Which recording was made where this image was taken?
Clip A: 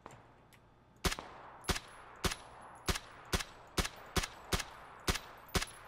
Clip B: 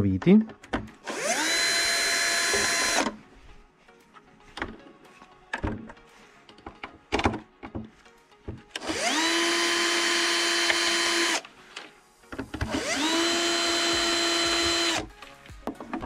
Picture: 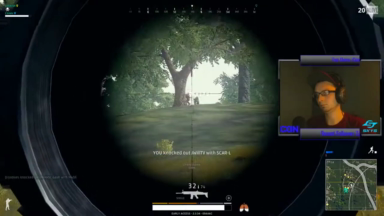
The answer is A